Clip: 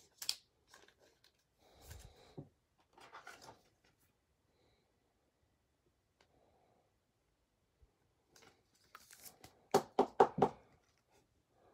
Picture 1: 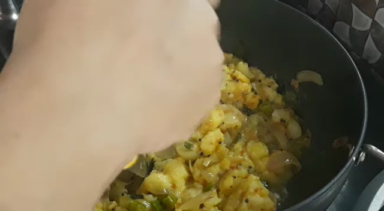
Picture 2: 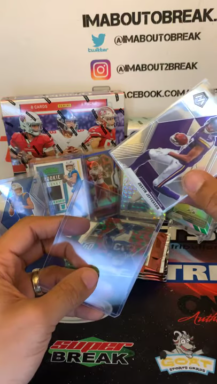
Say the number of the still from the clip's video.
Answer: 2